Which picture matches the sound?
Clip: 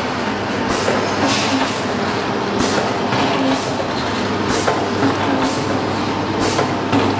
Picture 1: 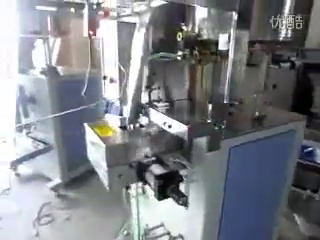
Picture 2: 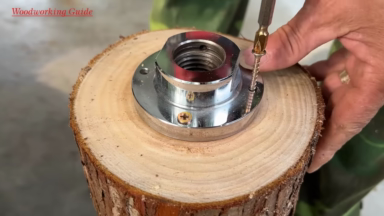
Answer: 1